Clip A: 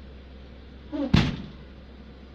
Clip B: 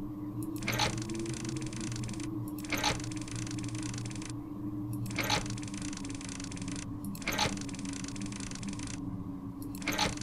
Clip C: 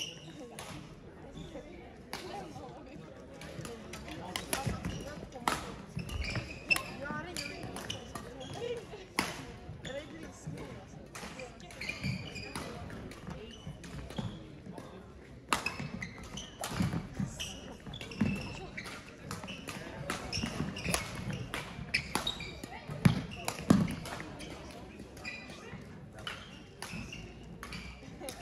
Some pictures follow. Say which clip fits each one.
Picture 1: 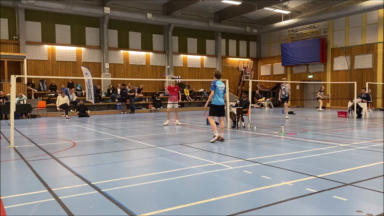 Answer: C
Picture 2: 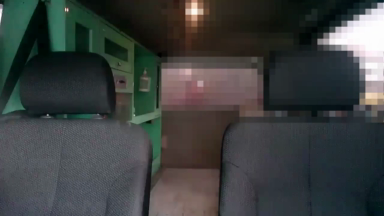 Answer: A